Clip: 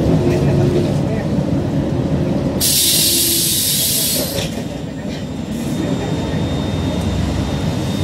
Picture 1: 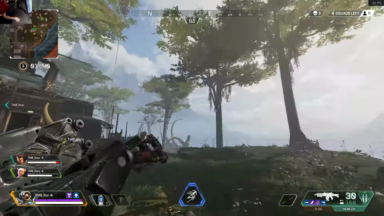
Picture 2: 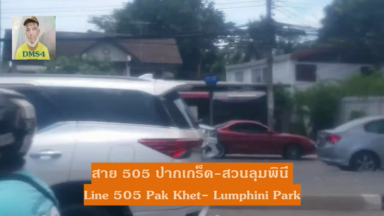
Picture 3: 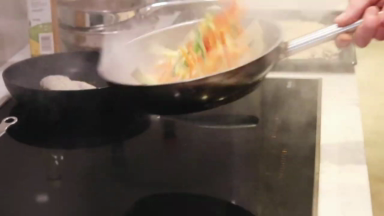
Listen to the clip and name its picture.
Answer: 2